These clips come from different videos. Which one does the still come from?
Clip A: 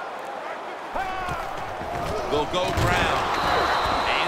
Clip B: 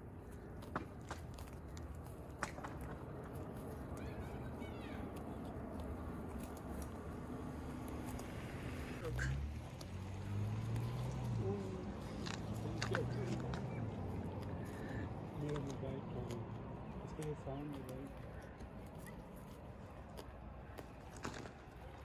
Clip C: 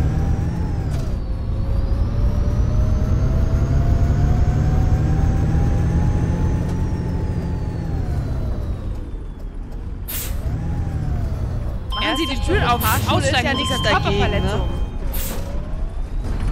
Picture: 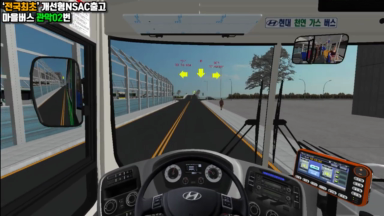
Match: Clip C